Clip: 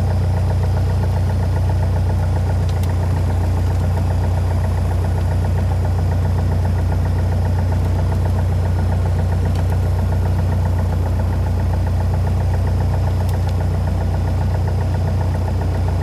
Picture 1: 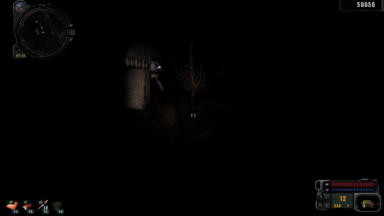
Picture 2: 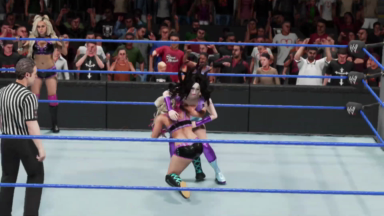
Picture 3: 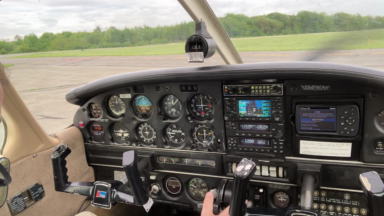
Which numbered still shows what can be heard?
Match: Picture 3